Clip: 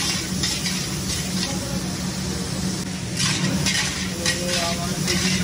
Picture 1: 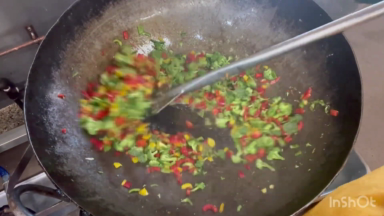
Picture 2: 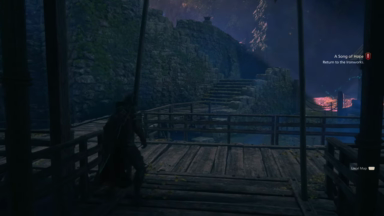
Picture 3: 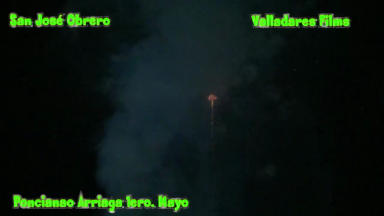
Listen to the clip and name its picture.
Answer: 1